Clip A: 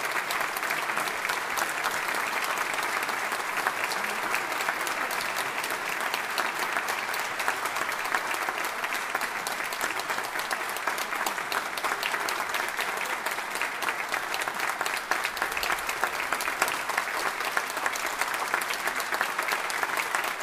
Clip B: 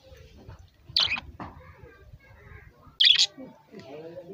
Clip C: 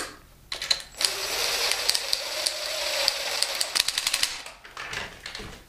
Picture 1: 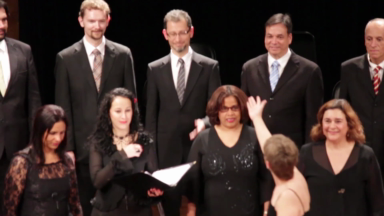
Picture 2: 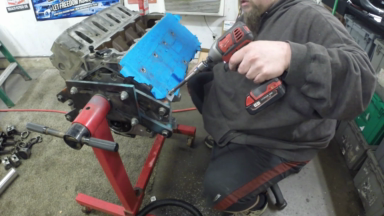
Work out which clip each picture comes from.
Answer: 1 A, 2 C